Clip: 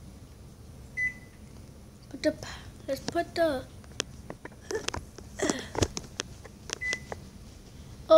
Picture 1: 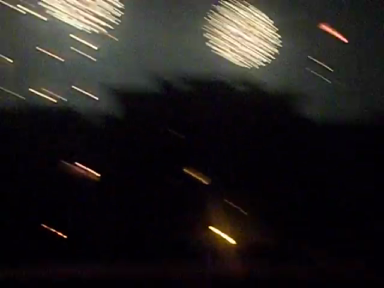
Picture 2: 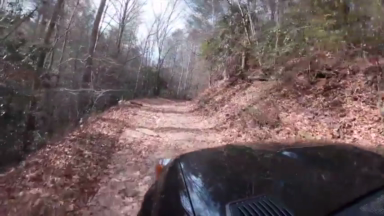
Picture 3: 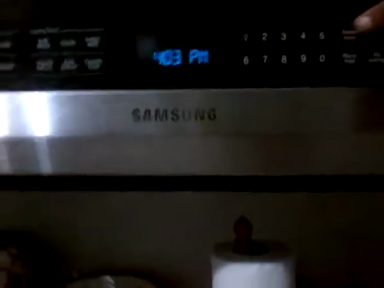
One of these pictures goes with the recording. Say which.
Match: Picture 3